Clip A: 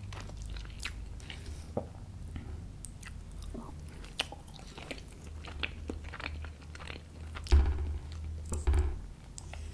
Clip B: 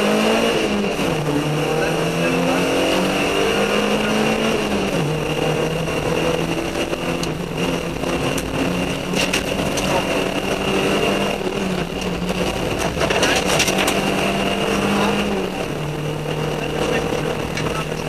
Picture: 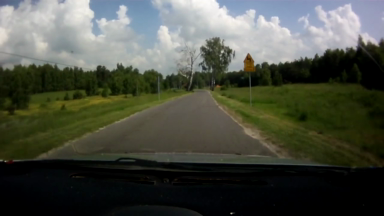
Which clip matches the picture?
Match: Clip B